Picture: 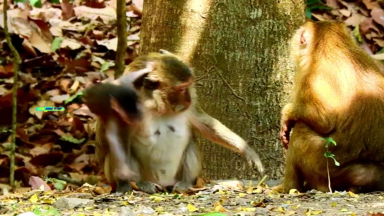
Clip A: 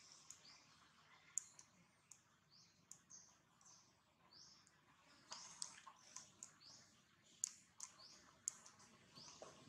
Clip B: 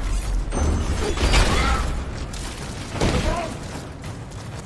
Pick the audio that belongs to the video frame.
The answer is A